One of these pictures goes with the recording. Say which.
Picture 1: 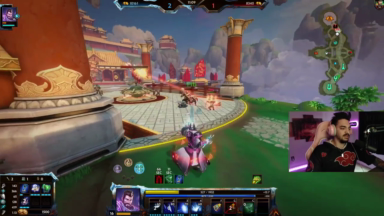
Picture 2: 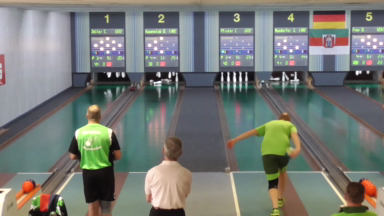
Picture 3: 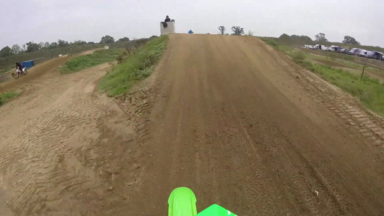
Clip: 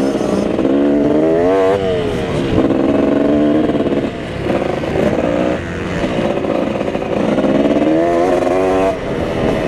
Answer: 3